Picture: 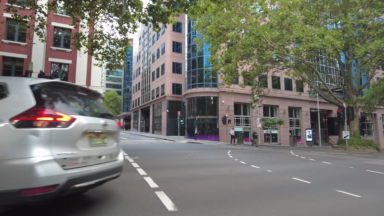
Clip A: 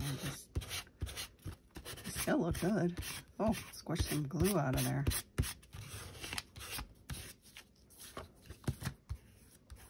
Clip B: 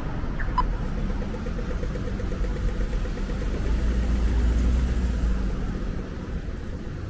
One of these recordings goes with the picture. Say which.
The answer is B